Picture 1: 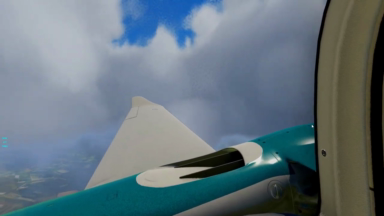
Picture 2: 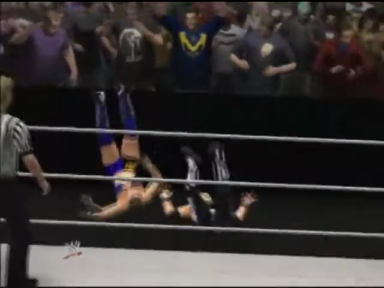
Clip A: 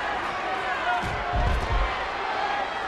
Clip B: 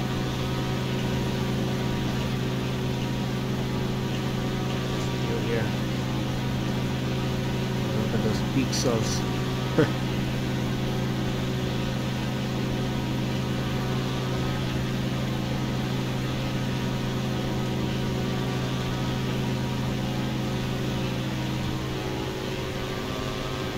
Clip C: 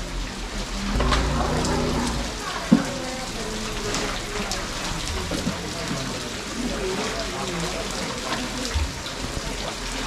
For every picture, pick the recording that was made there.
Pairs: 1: B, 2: A